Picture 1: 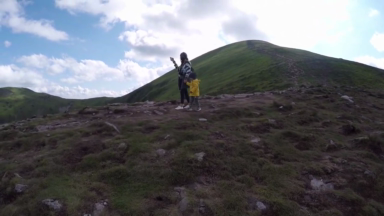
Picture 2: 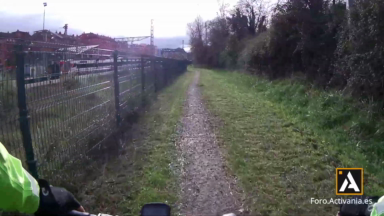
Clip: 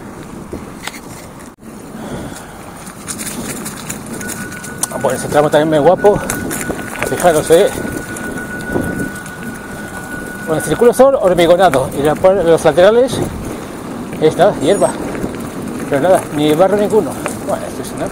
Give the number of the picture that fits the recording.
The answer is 2